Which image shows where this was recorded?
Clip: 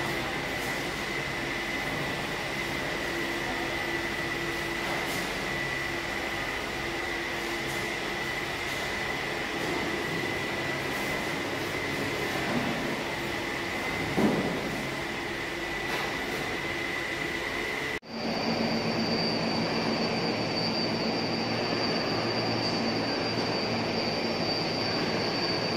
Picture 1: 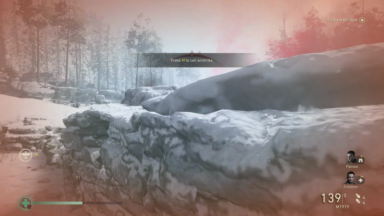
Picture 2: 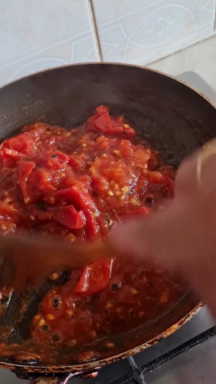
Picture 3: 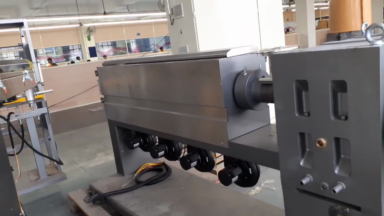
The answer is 3